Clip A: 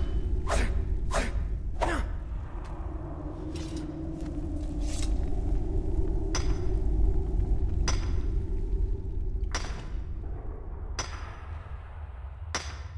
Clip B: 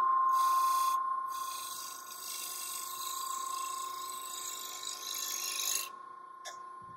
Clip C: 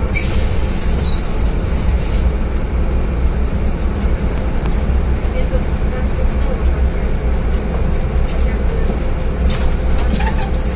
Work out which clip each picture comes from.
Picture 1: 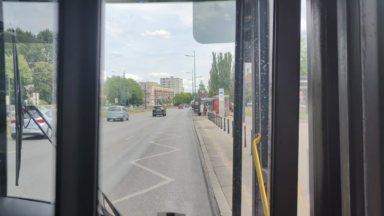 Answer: C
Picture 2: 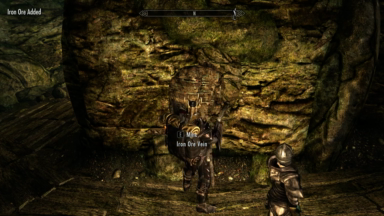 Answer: A